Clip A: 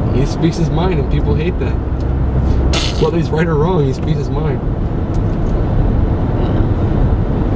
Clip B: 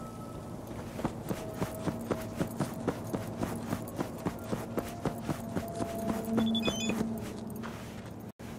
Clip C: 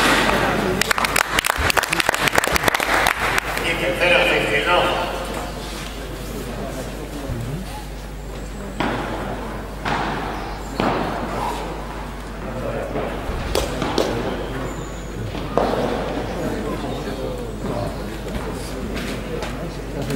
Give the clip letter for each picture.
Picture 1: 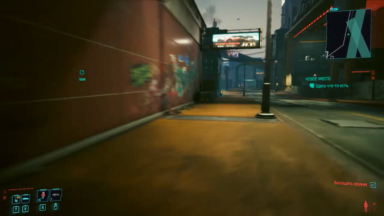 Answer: B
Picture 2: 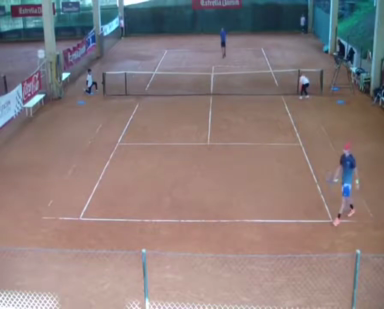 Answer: C